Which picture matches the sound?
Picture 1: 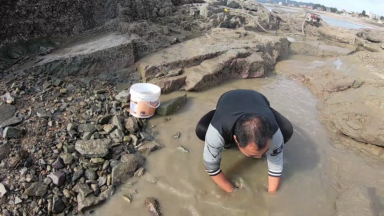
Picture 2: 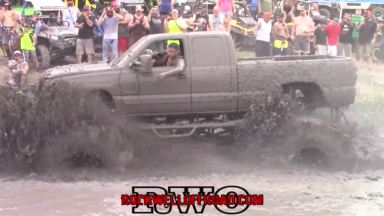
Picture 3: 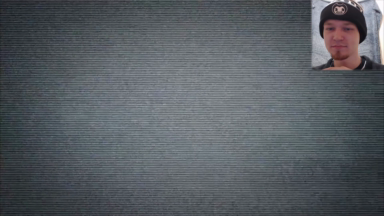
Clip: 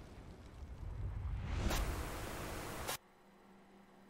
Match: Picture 3